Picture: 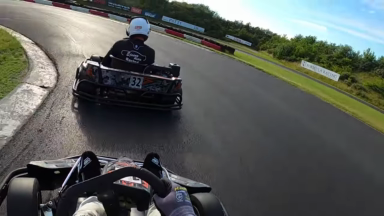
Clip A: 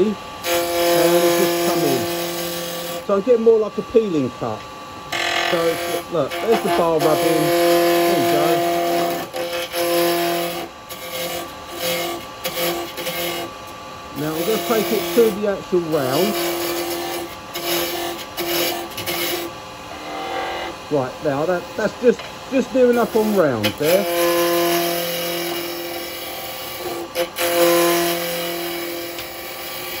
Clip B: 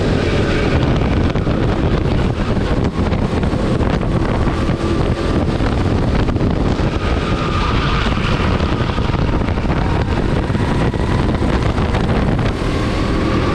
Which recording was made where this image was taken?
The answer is B